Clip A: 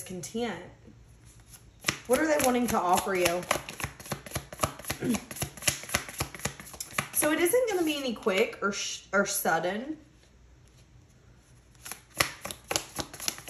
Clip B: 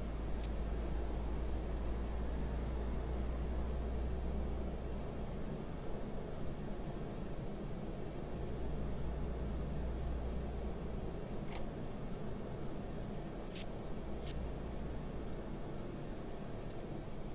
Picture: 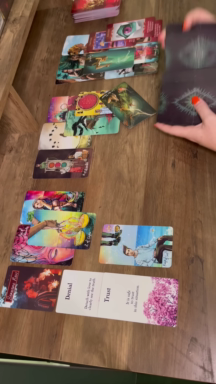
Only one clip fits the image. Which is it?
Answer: A